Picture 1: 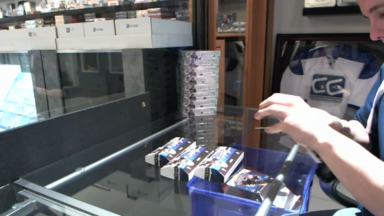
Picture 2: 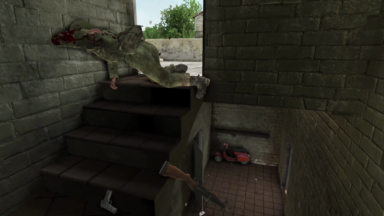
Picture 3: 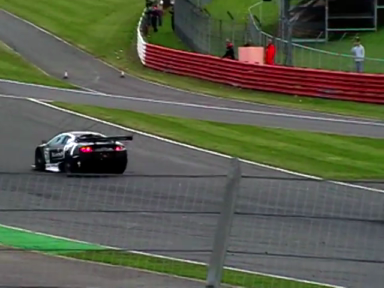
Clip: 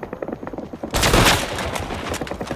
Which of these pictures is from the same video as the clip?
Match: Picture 2